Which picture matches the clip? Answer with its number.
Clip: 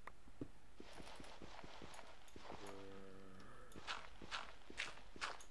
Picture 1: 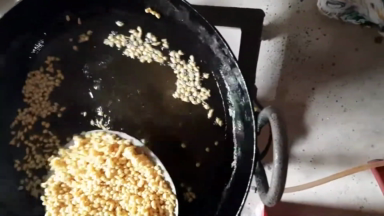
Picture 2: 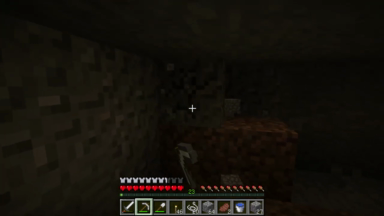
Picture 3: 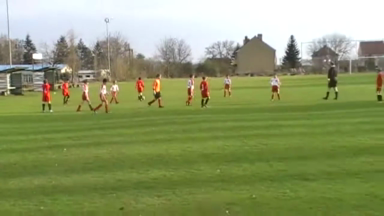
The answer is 2